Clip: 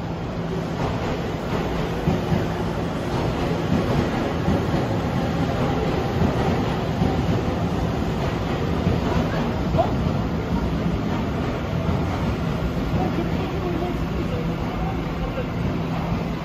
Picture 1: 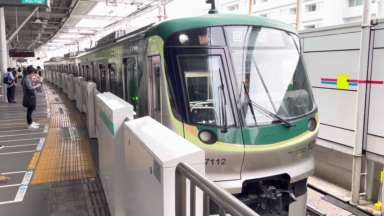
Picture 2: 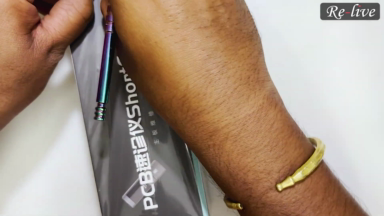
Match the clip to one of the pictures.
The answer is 1